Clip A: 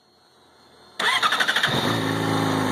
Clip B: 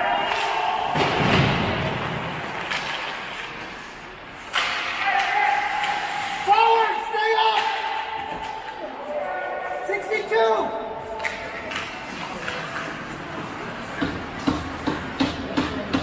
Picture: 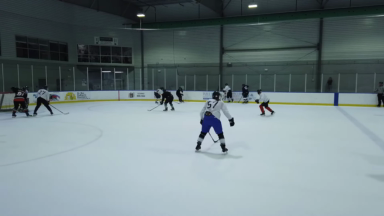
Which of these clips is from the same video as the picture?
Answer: B